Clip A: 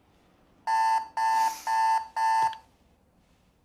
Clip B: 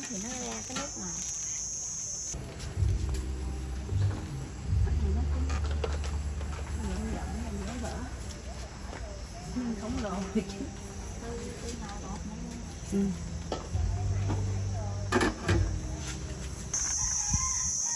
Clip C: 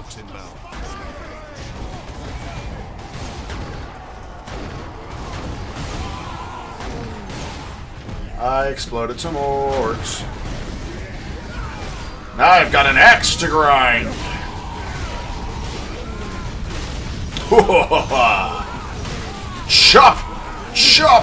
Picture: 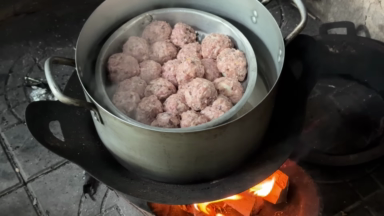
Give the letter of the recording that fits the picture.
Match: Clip B